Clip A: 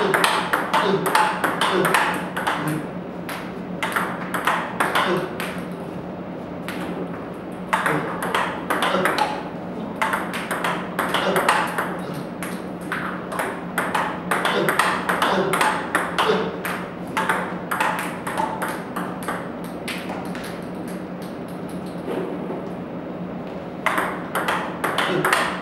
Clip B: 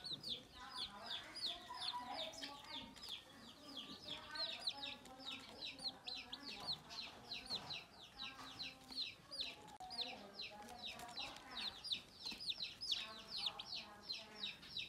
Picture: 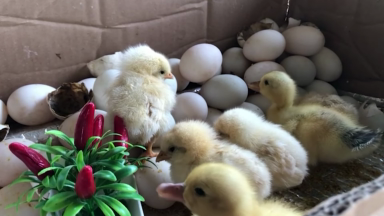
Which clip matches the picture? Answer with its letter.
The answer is B